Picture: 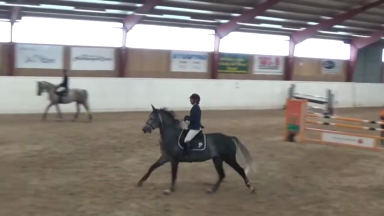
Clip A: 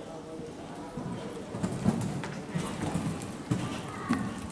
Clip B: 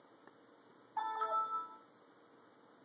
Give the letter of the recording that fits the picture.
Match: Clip A